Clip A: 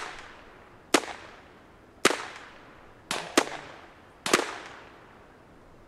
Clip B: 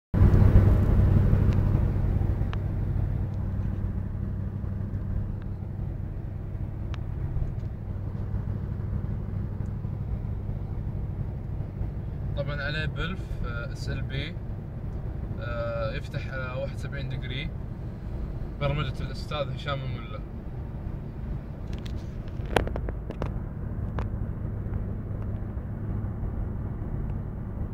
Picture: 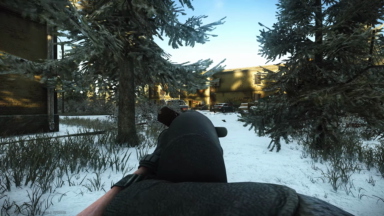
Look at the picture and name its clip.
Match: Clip A